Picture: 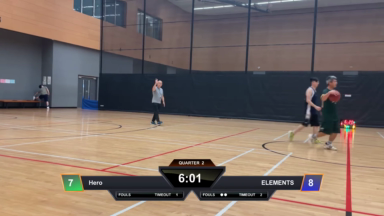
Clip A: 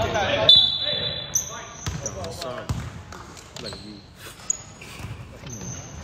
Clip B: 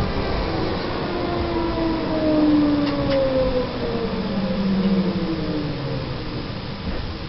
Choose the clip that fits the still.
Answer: A